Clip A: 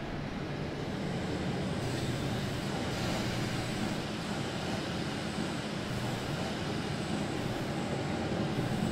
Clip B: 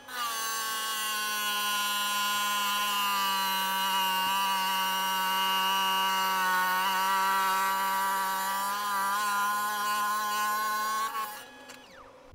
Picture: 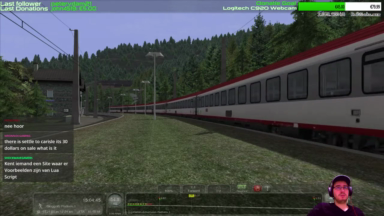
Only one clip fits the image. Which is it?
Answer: A